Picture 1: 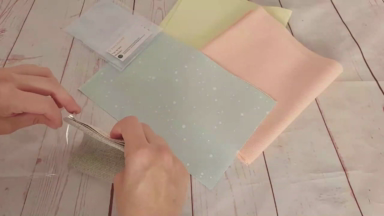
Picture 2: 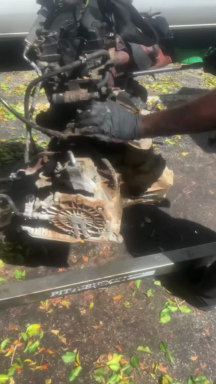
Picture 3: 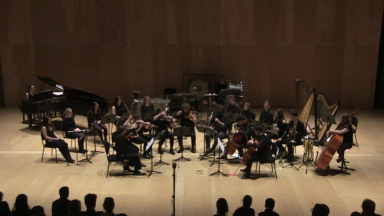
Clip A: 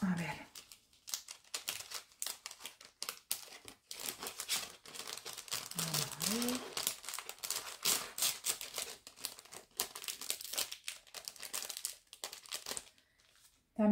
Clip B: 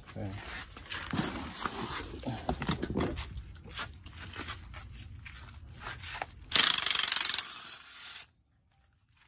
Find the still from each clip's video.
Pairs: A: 1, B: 2